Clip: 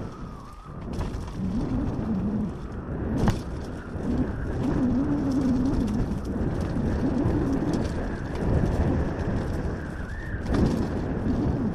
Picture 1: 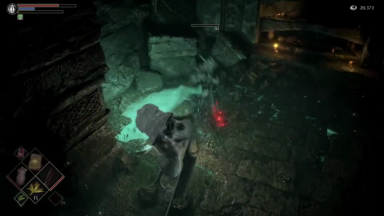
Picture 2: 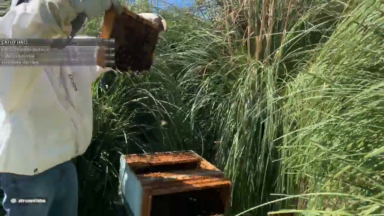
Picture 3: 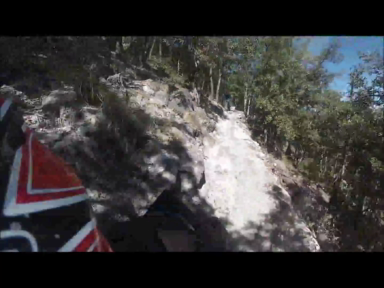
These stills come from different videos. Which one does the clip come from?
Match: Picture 3